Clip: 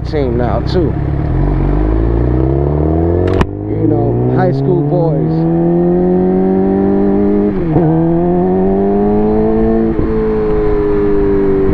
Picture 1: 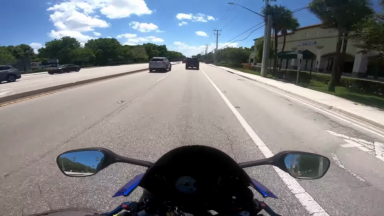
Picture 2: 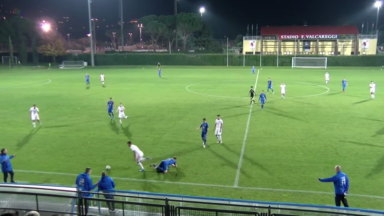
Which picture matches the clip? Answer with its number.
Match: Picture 1